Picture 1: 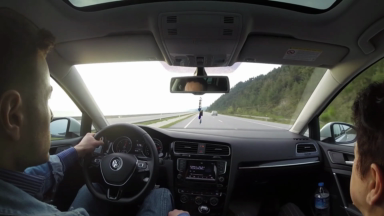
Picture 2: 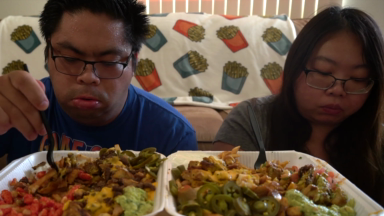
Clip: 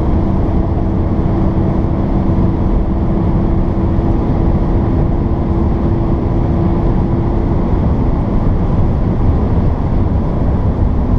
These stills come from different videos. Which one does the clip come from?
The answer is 1